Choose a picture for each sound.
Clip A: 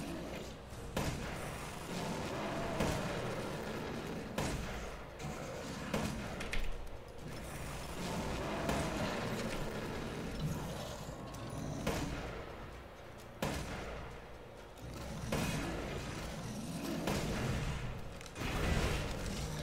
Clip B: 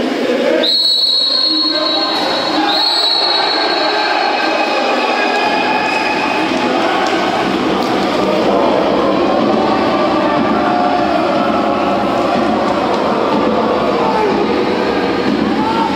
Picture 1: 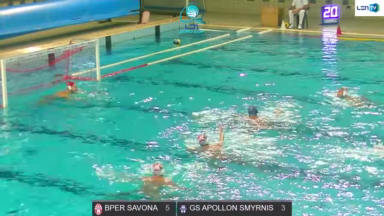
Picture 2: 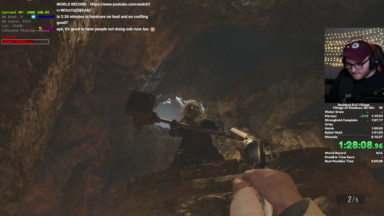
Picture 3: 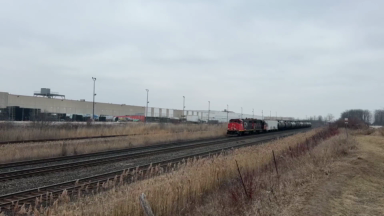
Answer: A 2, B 1